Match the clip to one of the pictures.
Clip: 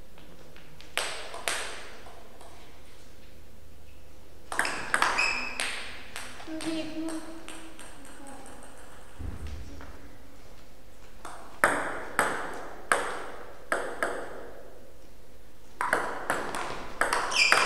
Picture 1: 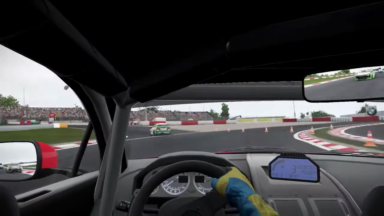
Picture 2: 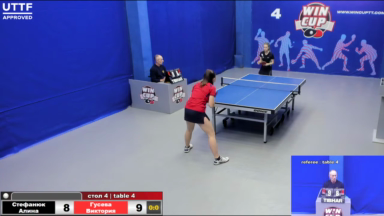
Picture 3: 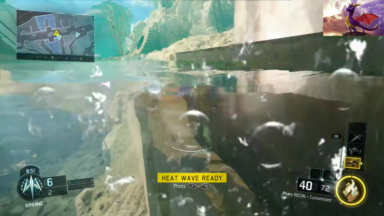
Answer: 2